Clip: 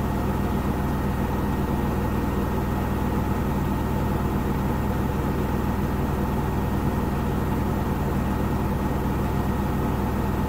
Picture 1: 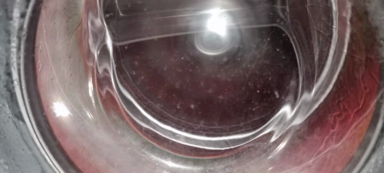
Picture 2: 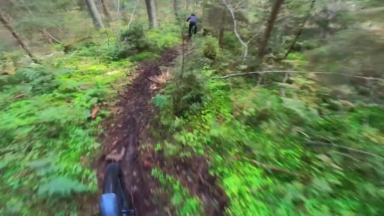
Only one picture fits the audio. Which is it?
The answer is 1